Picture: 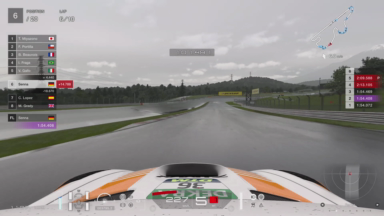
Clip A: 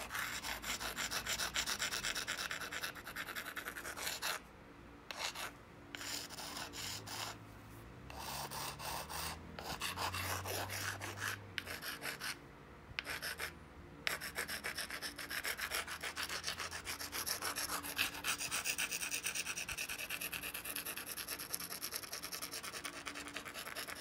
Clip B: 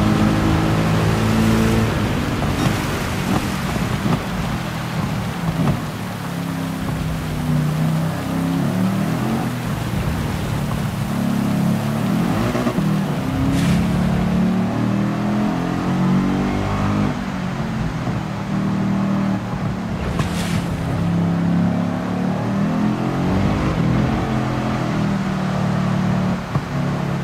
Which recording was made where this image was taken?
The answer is B